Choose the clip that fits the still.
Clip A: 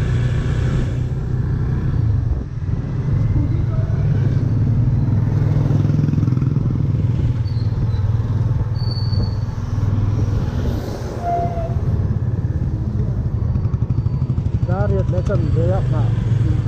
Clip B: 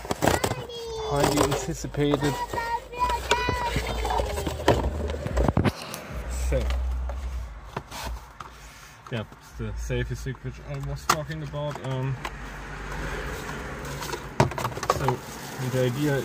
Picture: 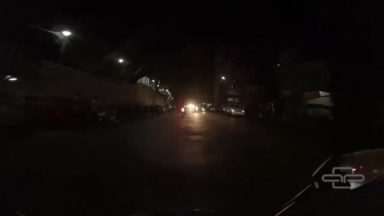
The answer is A